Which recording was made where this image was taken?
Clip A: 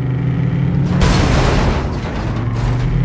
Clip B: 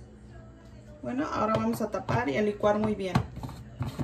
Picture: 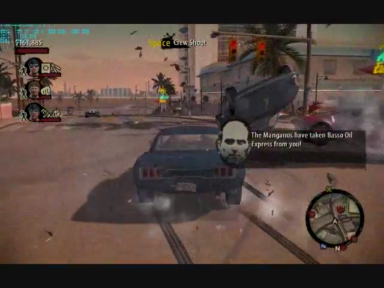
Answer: A